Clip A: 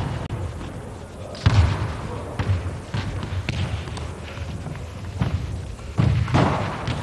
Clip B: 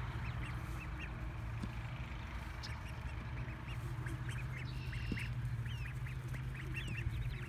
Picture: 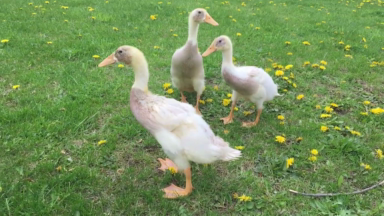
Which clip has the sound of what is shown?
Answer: B